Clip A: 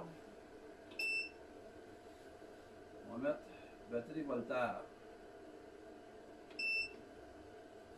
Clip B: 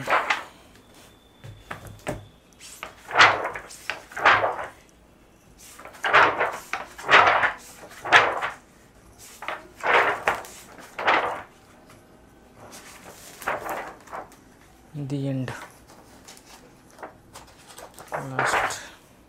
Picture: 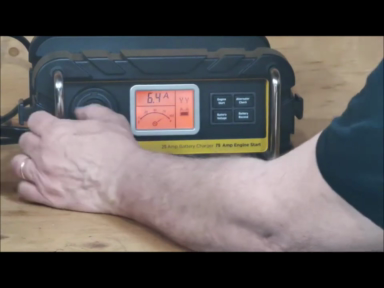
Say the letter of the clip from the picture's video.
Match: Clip A